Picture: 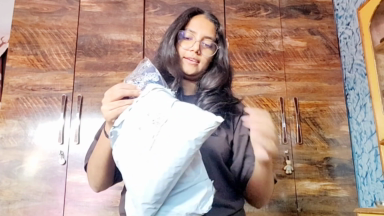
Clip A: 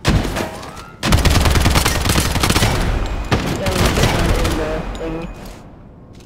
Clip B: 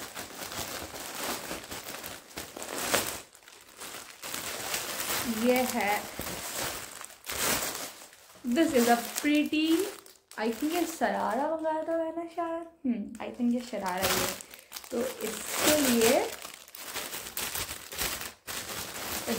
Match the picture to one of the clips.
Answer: B